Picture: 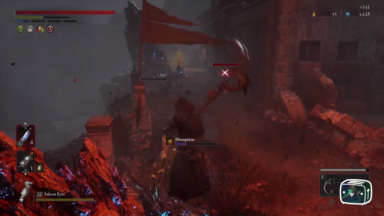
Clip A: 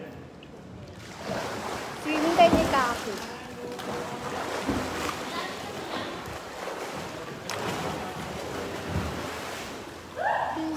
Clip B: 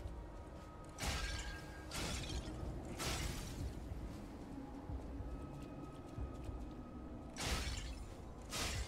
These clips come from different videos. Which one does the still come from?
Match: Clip B